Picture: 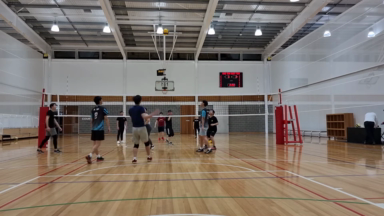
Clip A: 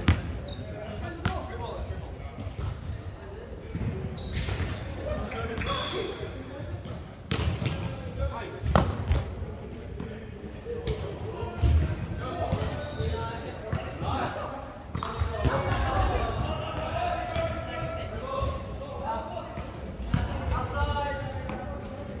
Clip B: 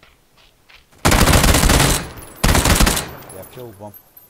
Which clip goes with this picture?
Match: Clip A